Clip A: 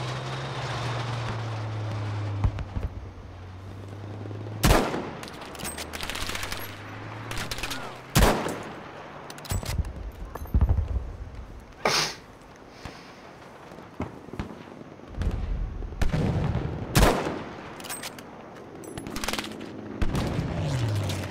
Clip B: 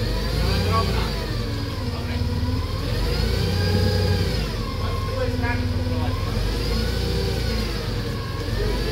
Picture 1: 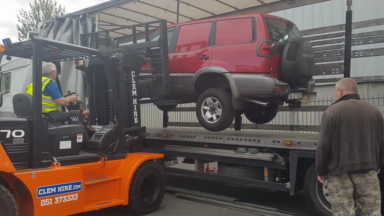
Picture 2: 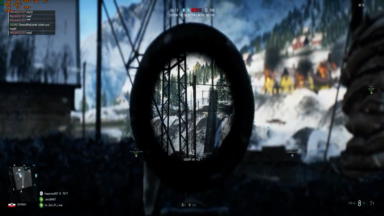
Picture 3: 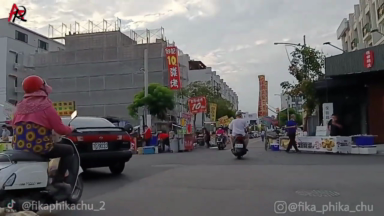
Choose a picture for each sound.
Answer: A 2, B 1